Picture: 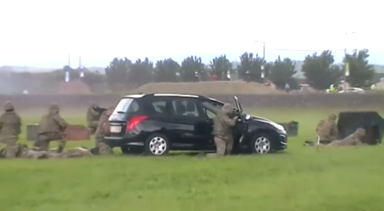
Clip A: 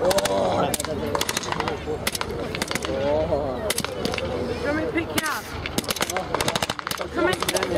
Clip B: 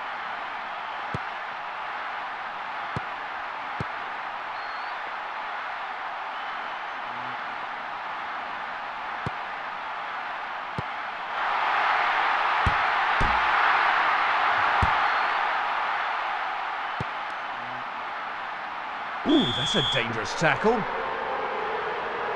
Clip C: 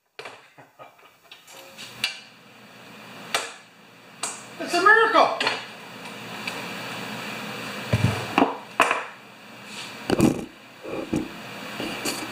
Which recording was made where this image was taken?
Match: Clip A